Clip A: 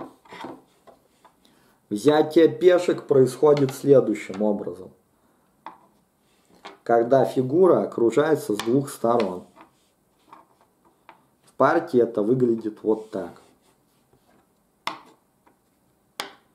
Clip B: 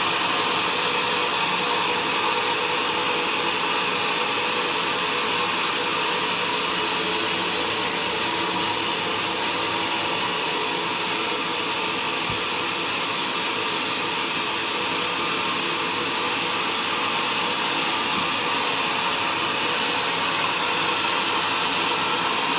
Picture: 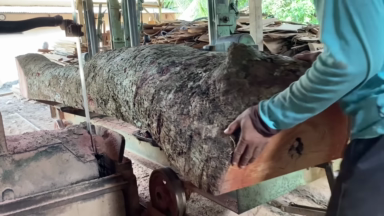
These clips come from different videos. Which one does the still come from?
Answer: B